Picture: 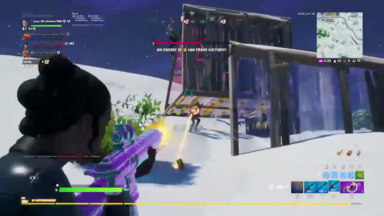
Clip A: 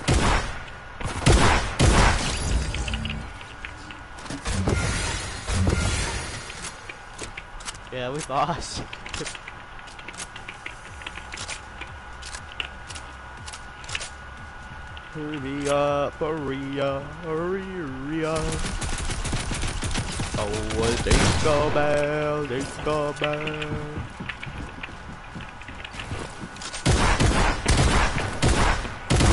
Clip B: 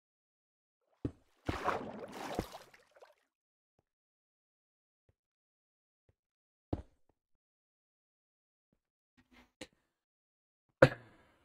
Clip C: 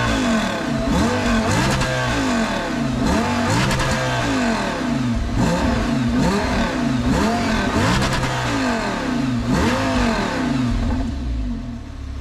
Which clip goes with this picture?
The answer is A